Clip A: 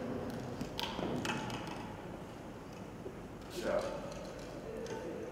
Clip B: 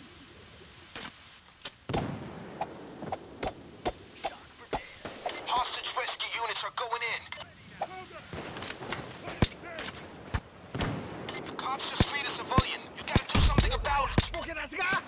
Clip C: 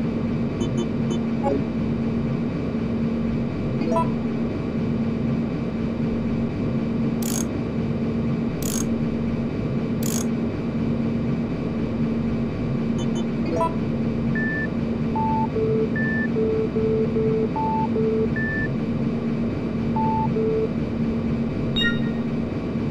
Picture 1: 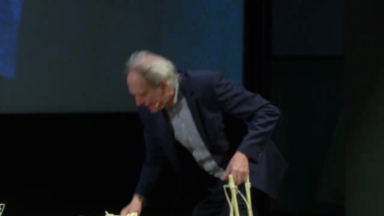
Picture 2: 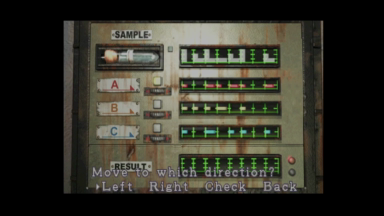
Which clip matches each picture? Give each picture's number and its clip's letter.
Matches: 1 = A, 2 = C